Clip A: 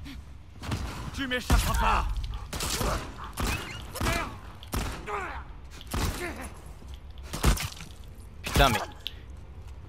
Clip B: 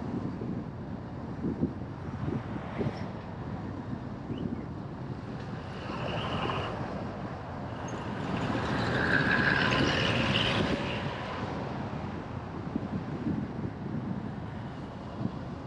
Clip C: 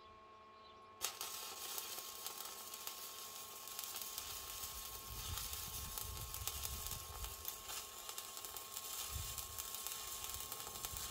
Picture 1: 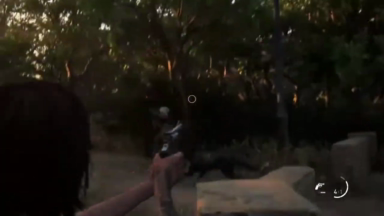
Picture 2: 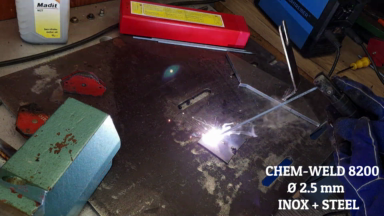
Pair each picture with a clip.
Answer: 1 A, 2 C